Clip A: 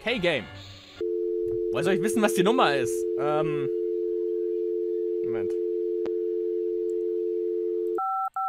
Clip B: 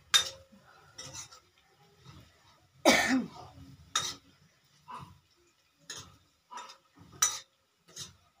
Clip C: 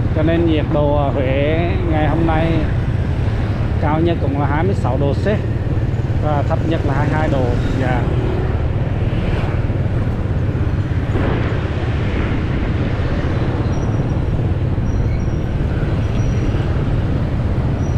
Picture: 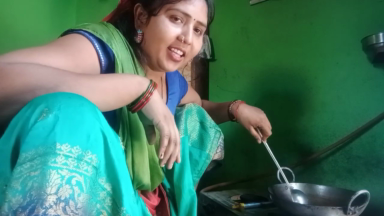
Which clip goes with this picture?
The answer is B